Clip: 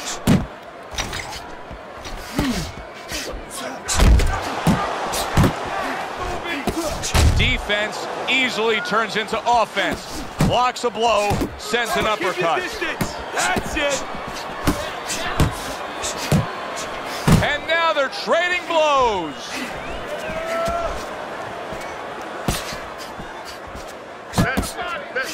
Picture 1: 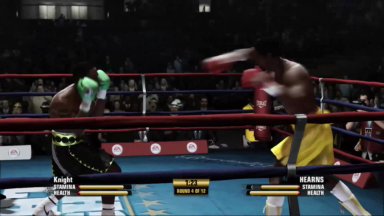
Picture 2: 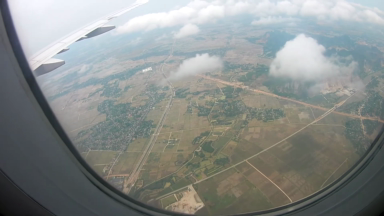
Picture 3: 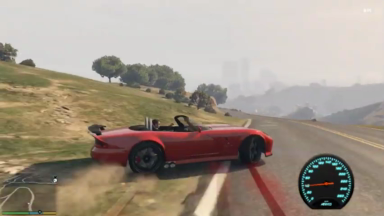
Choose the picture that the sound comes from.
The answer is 1